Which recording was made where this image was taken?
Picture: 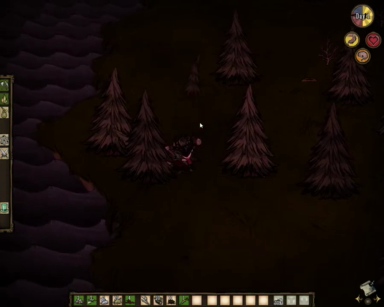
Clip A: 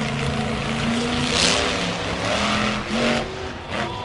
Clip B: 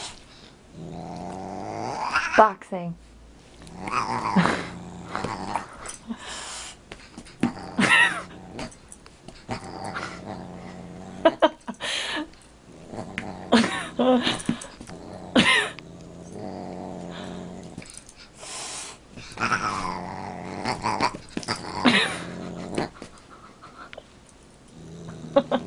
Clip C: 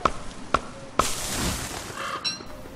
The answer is C